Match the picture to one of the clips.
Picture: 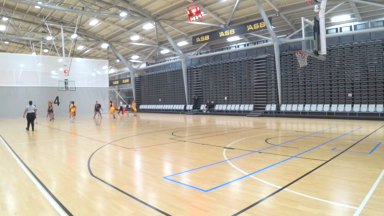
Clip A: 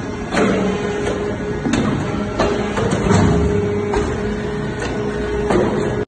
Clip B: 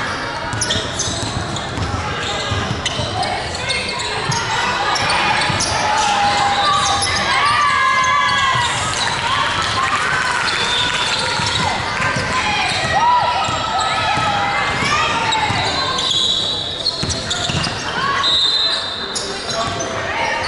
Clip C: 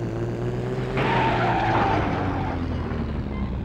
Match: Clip B